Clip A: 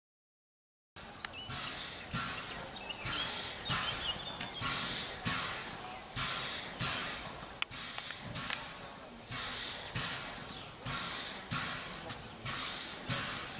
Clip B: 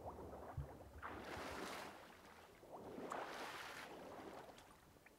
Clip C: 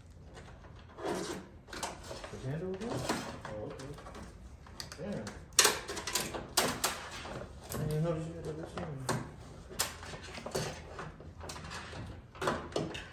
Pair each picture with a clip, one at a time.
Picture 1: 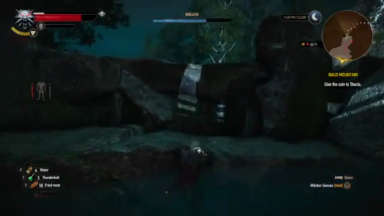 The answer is B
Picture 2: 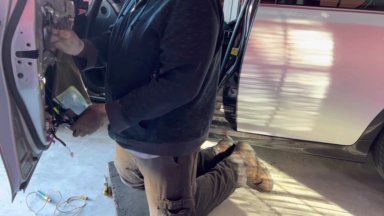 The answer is C